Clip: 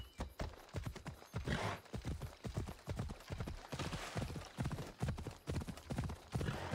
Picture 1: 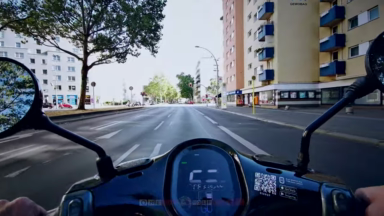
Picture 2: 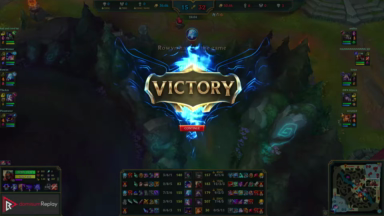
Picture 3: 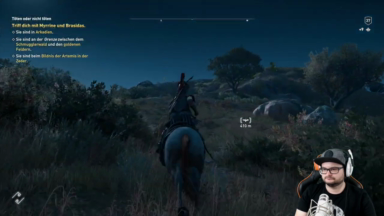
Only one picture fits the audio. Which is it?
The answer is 3